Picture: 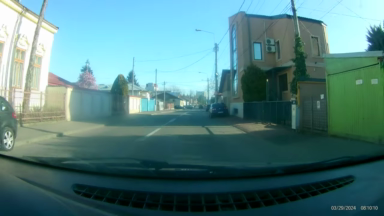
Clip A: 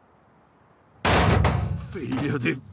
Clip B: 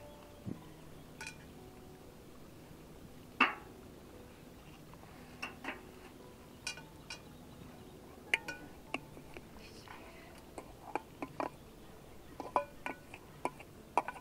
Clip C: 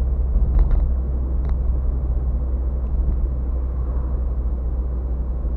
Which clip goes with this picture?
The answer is C